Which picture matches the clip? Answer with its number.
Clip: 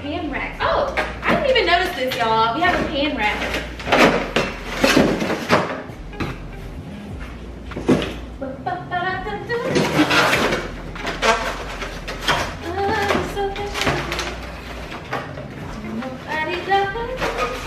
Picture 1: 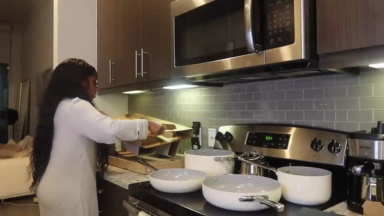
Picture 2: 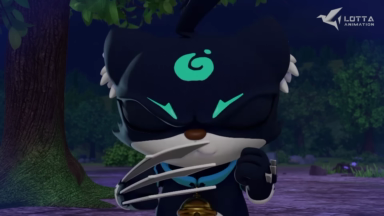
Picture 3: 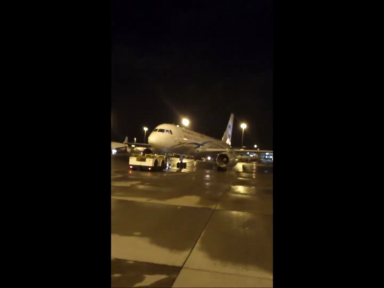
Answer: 1